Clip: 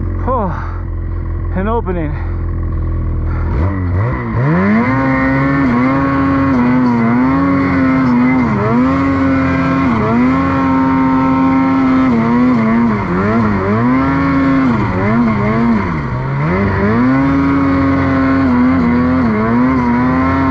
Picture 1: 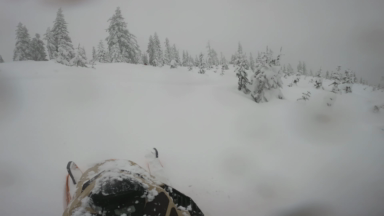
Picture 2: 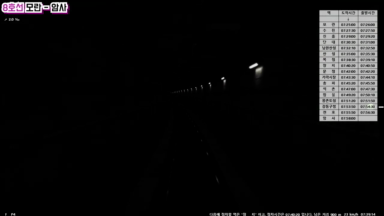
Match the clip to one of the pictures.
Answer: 1